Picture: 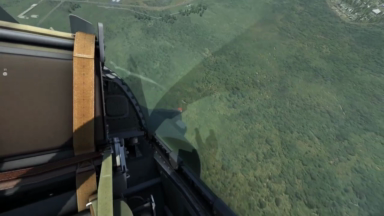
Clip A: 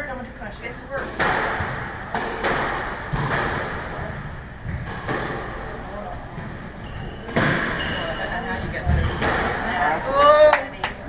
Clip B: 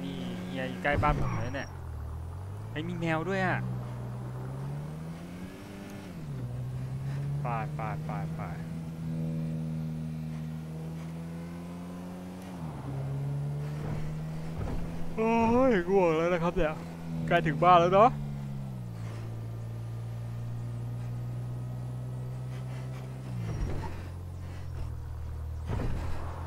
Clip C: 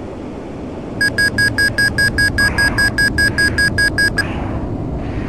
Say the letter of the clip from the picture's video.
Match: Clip C